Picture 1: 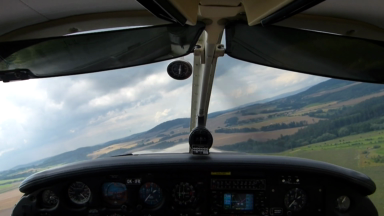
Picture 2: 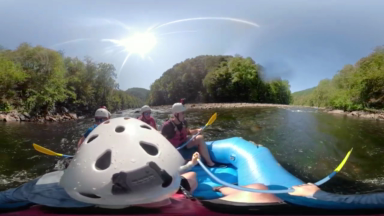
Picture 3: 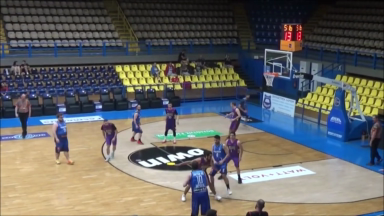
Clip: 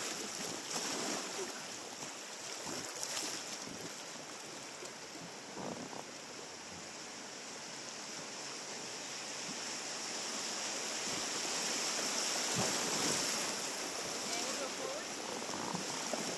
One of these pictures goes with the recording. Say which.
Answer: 2